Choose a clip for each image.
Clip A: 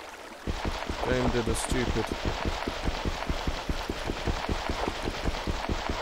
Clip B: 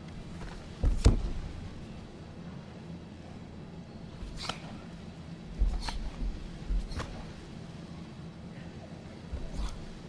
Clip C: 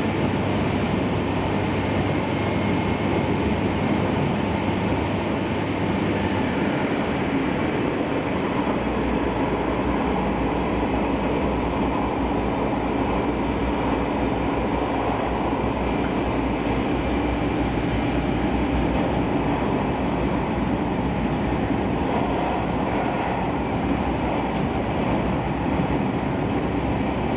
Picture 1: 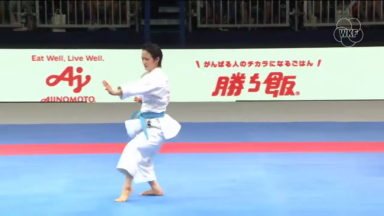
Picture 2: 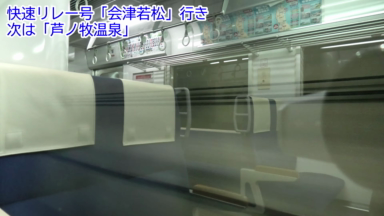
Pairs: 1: B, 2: C